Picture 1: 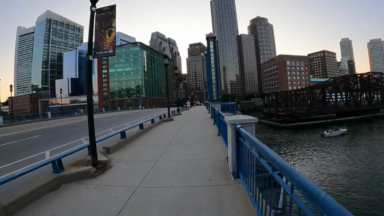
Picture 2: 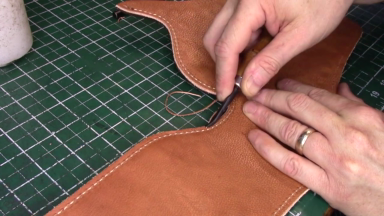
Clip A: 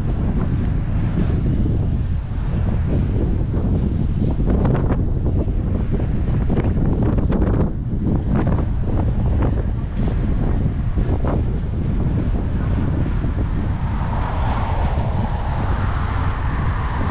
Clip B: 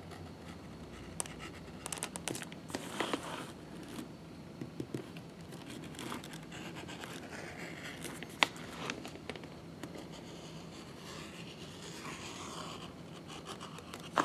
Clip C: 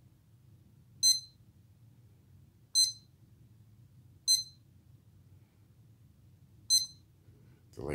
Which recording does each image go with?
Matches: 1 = A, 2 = B